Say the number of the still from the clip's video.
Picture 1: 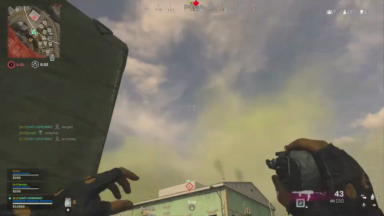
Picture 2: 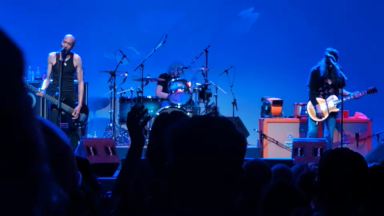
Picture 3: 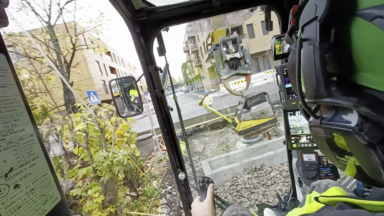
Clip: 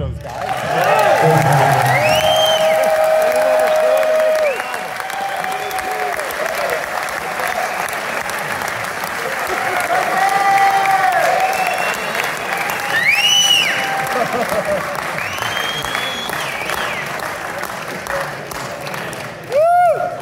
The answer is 2